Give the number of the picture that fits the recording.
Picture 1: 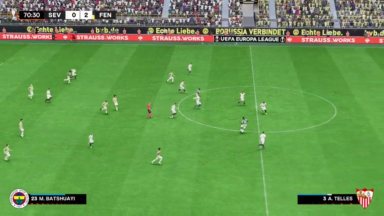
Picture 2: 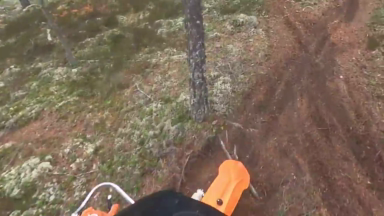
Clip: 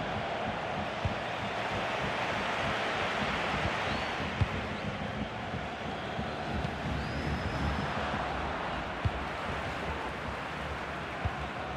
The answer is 1